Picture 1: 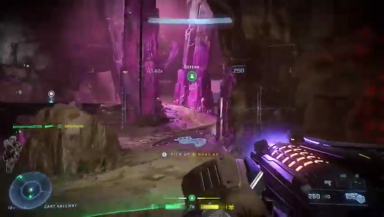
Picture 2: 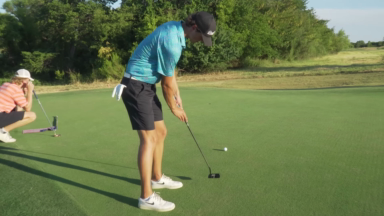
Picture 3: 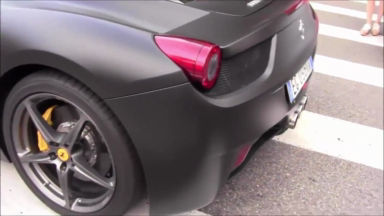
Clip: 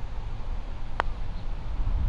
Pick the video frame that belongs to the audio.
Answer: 2